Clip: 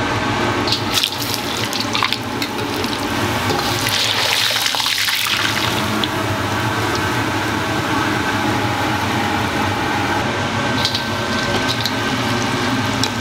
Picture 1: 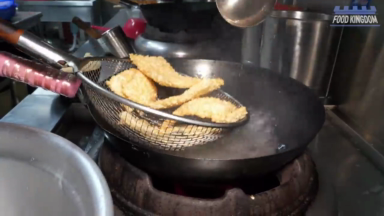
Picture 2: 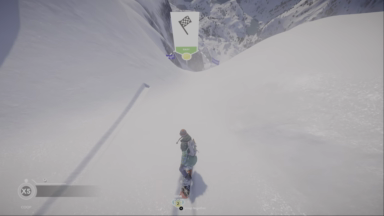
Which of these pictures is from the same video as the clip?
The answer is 1